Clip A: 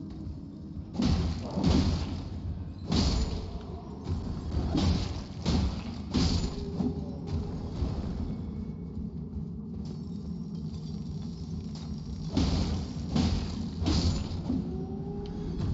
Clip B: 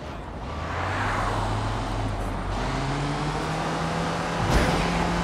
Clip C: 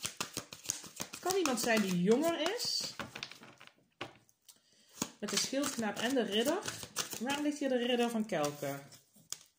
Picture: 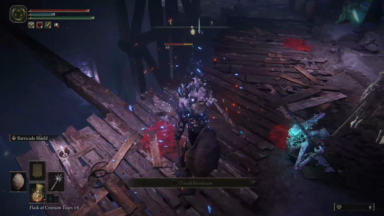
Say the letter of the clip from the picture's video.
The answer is A